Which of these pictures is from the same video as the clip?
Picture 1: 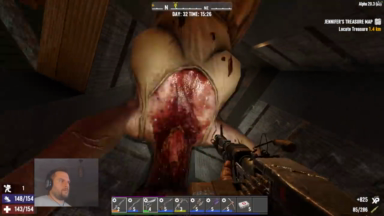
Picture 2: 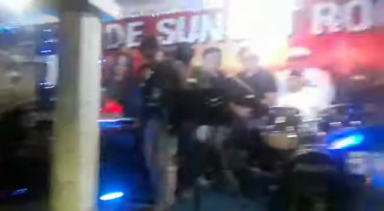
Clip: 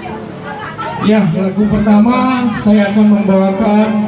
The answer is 2